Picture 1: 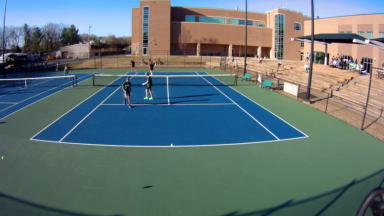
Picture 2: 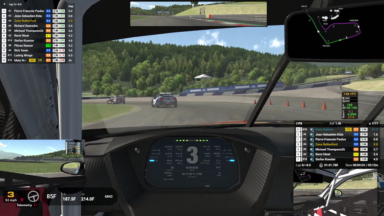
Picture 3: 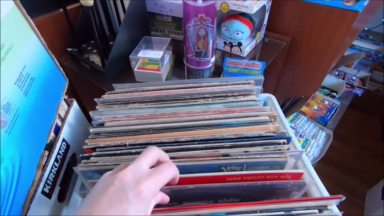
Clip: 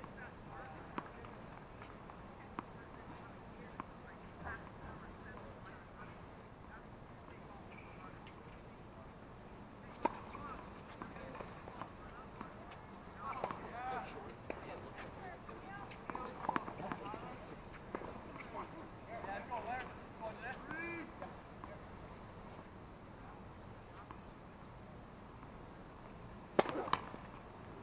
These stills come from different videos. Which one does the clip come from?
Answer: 1